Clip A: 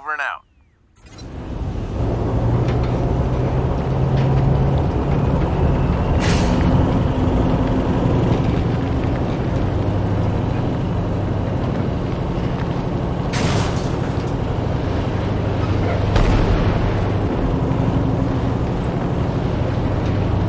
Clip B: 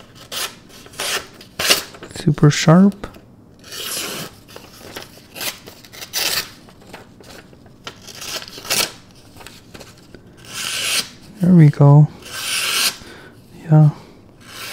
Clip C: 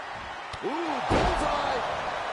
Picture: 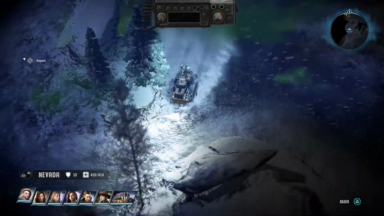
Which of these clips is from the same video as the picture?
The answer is A